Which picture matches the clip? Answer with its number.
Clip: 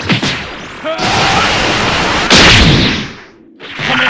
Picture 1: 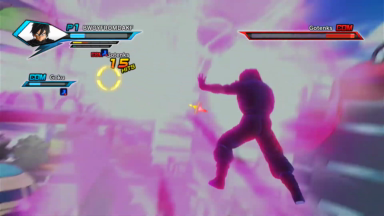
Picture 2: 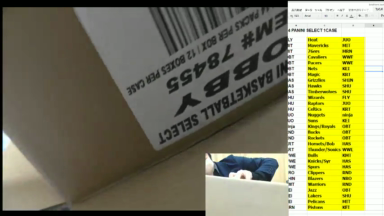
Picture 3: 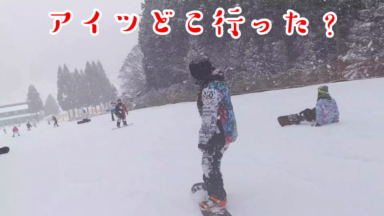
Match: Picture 1